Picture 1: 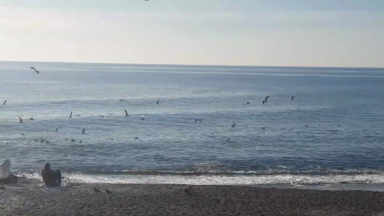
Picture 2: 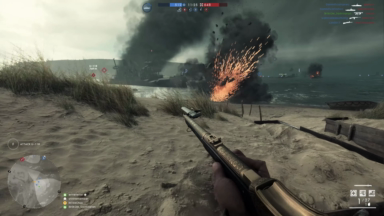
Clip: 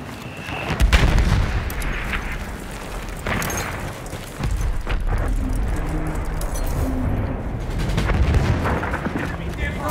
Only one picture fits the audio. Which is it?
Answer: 2